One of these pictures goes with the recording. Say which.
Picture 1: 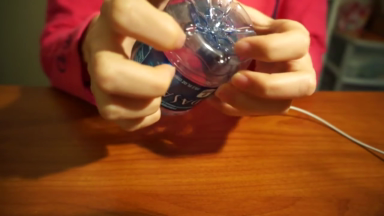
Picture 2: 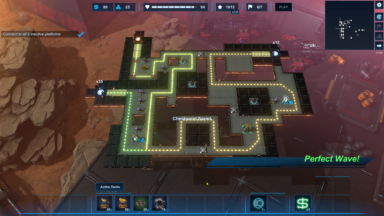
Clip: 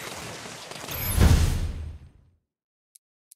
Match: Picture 2